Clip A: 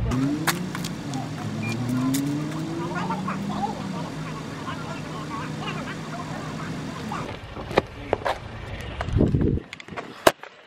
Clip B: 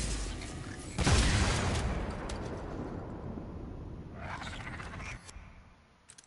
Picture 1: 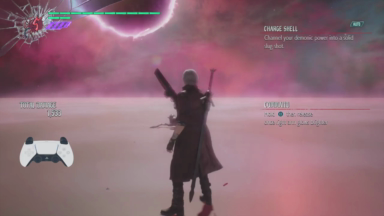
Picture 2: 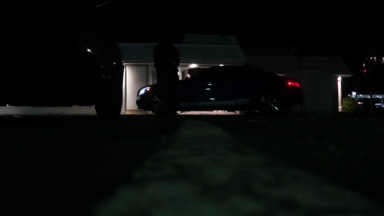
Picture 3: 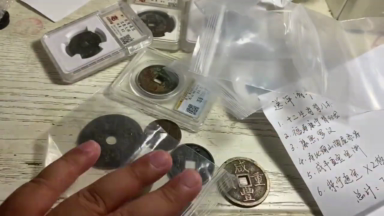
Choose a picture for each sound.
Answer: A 2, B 1